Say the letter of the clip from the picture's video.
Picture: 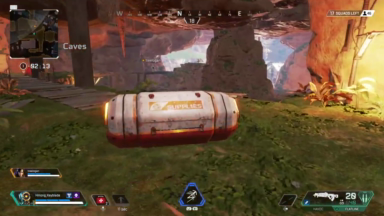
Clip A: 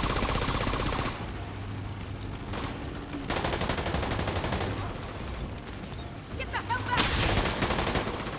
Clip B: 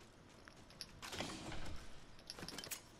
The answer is B